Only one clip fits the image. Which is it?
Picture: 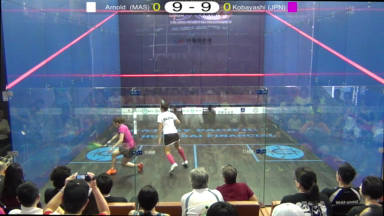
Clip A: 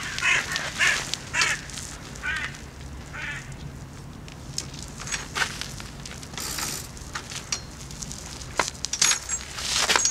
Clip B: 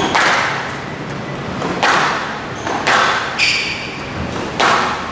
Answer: B